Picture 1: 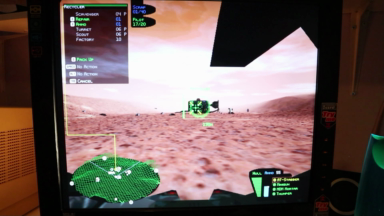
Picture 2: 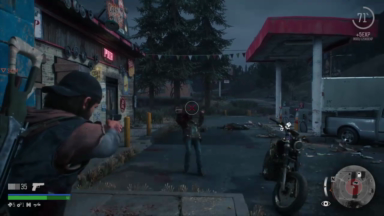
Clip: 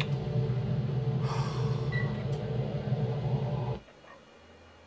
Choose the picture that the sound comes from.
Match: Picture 1